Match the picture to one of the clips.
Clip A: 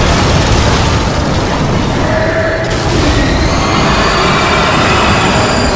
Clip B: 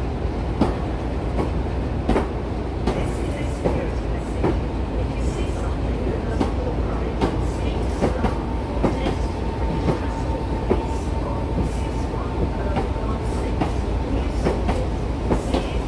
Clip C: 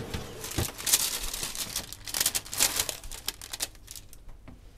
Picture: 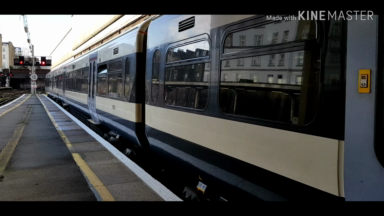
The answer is B